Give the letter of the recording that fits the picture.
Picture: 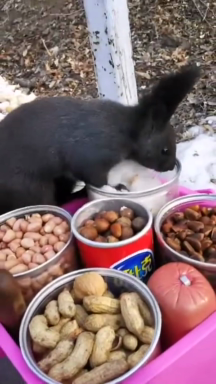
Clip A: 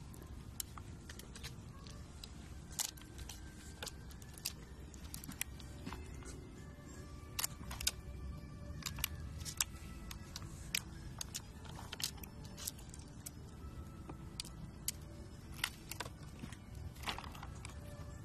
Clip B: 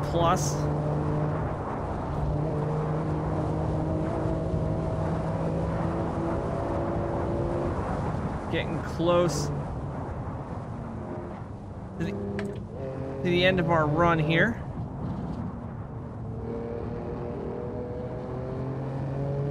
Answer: A